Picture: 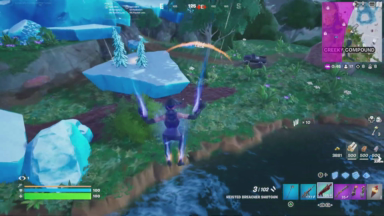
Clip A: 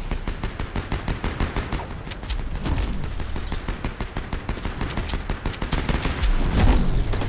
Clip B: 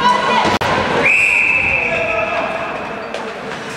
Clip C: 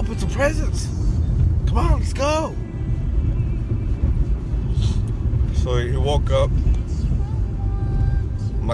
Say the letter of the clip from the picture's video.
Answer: A